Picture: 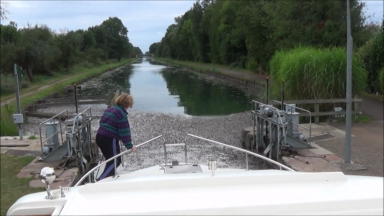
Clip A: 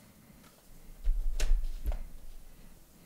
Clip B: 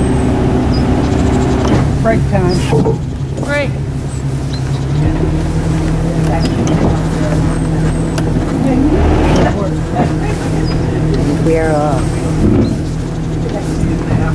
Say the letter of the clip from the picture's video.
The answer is B